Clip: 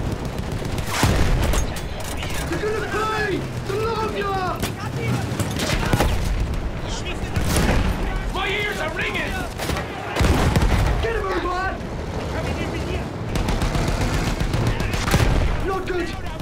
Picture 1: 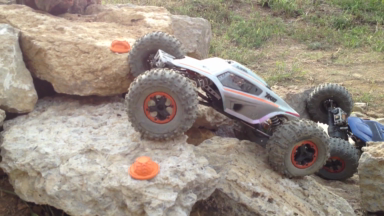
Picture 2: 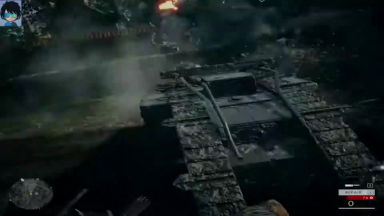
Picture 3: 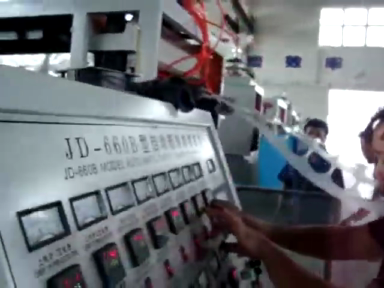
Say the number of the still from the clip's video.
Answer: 2